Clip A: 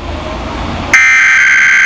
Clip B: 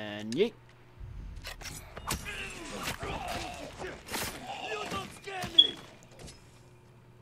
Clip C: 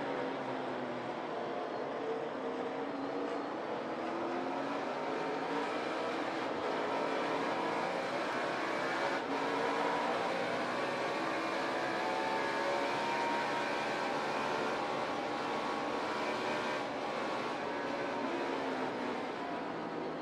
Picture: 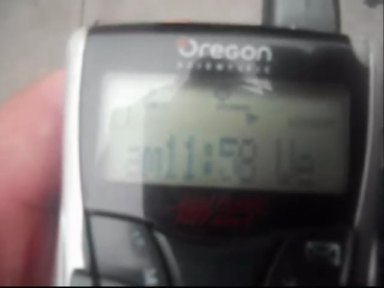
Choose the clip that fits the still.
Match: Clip A